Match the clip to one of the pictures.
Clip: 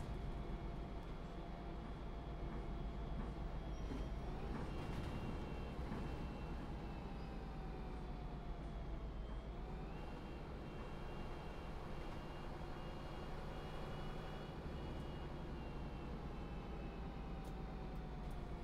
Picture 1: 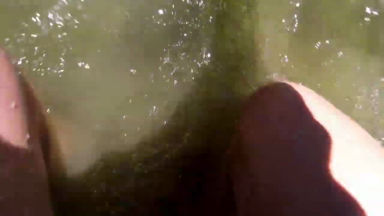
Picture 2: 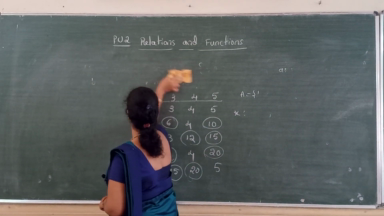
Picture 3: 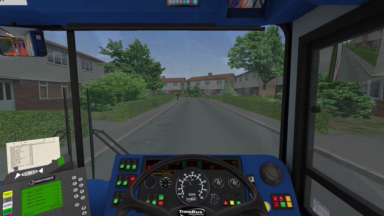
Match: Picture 3